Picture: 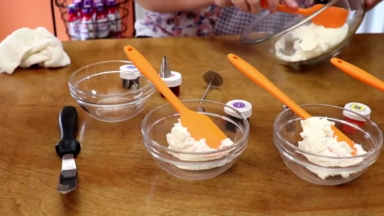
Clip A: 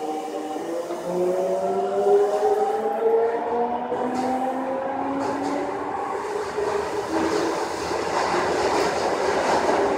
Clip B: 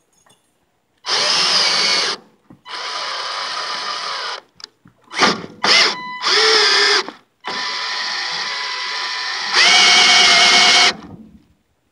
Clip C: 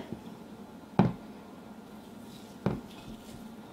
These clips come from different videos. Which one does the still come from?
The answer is C